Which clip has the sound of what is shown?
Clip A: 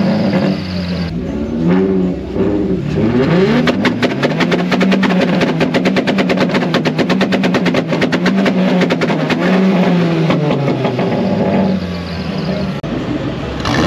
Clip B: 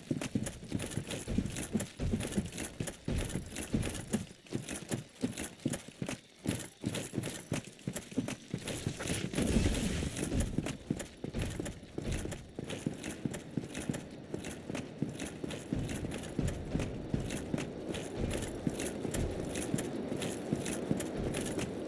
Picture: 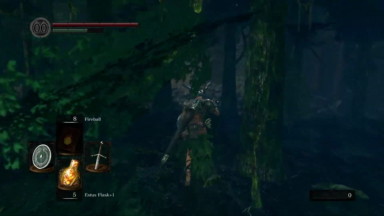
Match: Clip B